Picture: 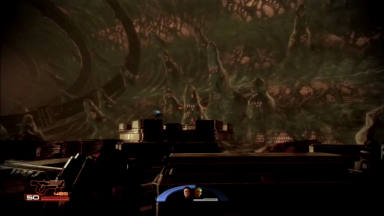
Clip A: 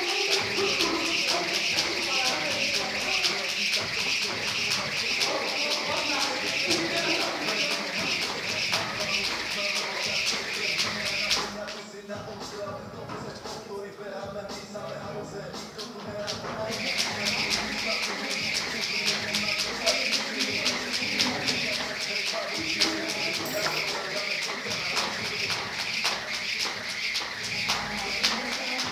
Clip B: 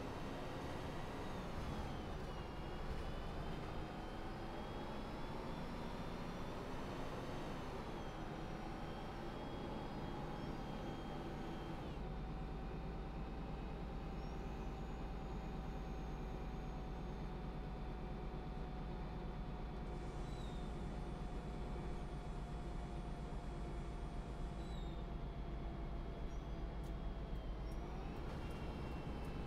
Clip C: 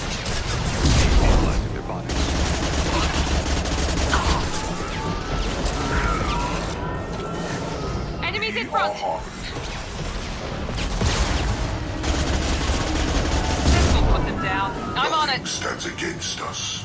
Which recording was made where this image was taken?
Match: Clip C